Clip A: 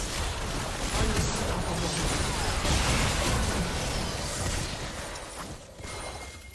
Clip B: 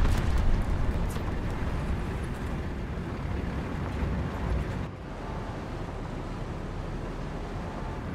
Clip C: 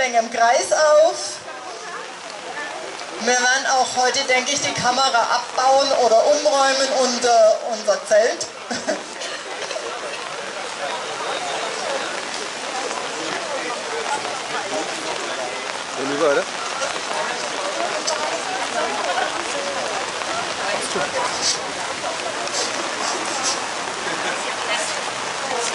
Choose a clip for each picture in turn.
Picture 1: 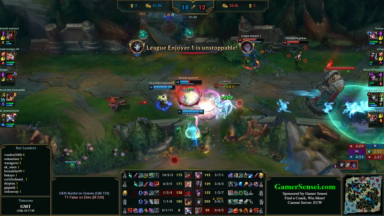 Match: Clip A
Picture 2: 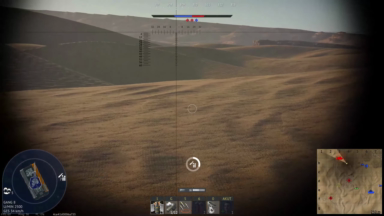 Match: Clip B